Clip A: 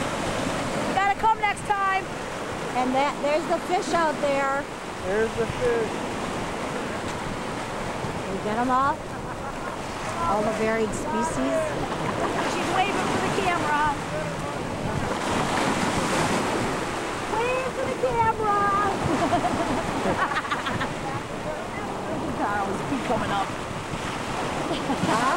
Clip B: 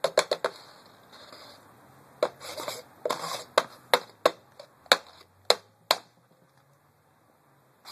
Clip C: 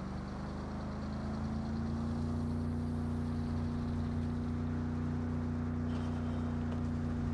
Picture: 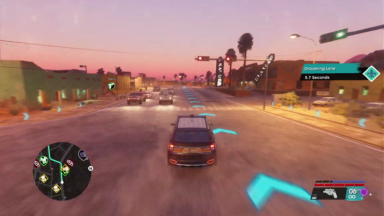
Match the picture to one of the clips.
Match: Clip C